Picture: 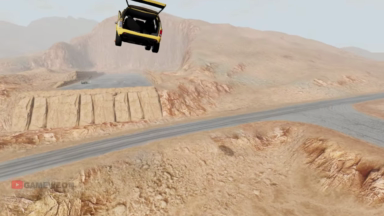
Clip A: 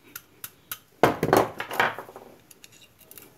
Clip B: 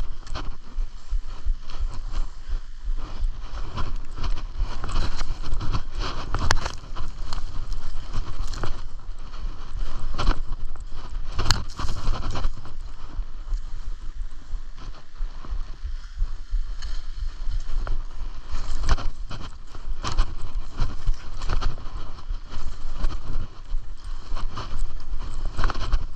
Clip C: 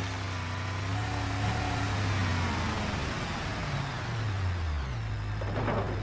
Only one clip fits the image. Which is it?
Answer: C